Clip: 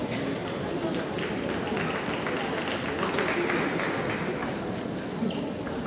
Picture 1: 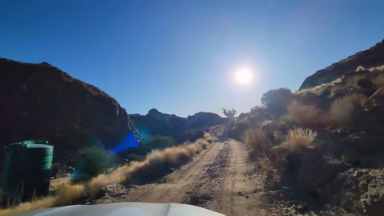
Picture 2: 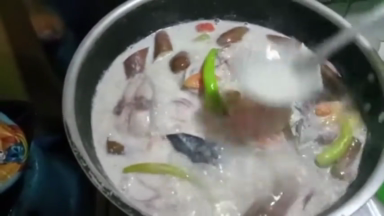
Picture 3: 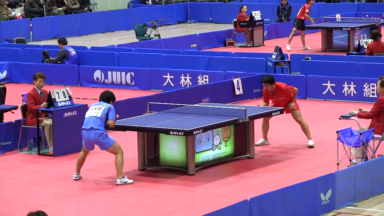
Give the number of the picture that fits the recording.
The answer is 3